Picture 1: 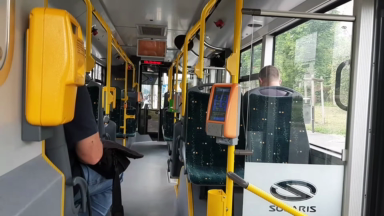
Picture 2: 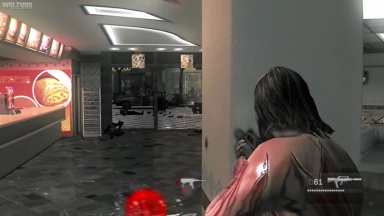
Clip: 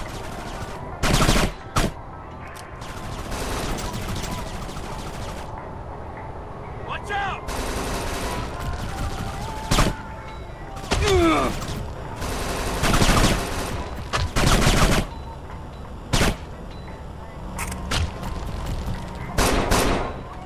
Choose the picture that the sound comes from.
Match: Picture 2